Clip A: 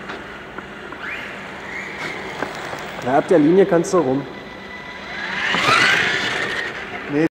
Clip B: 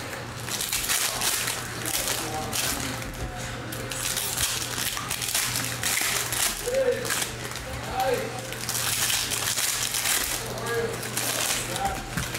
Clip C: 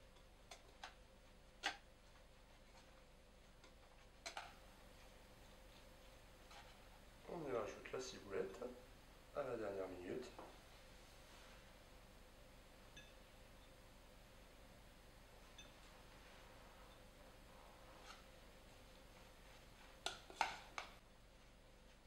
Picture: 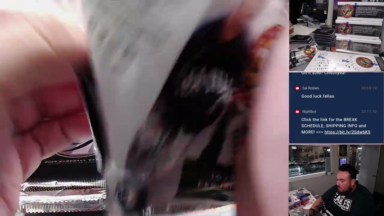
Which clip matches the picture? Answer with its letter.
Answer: B